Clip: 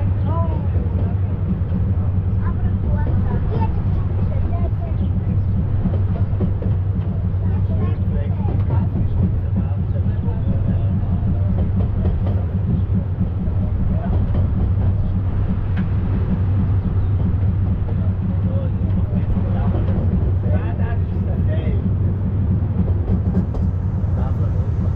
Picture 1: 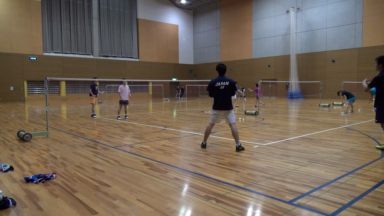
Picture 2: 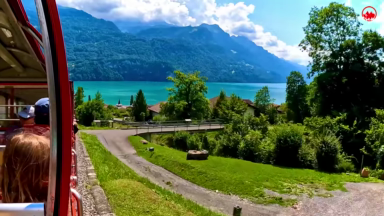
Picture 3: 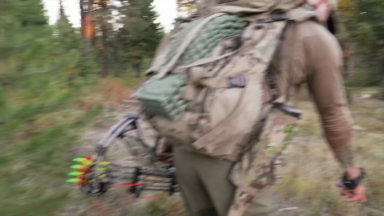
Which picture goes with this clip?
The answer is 2